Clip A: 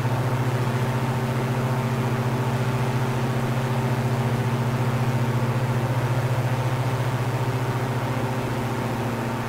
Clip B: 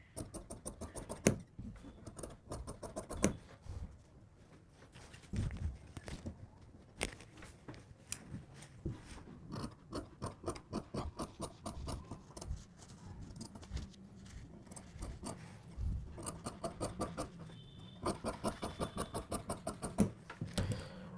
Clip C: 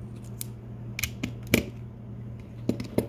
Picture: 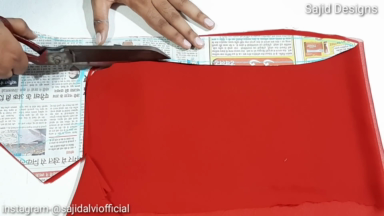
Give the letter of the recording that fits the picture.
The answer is B